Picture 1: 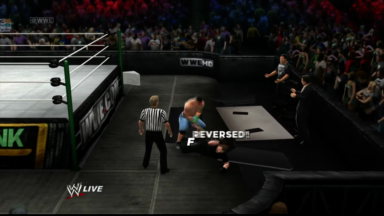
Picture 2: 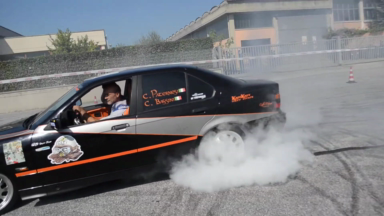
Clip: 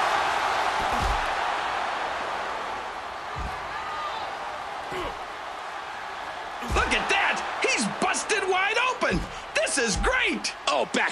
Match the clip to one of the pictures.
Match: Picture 1